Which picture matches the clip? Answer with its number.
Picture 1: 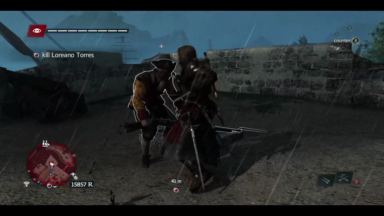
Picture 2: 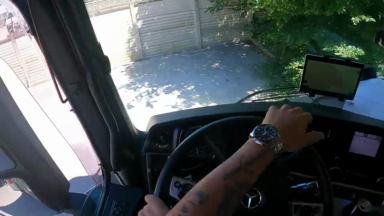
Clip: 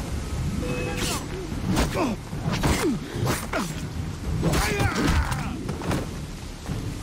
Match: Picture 1